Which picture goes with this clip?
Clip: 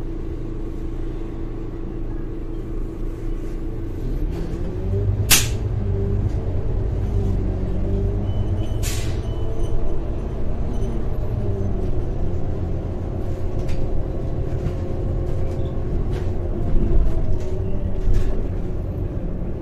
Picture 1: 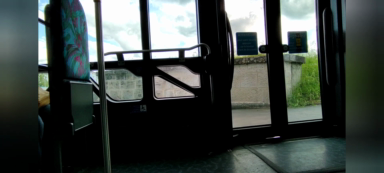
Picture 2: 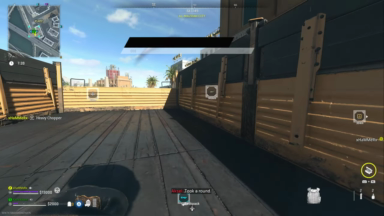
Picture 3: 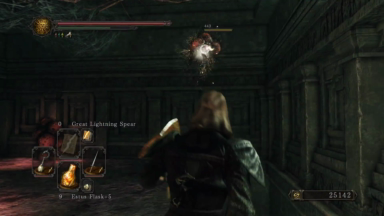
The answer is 1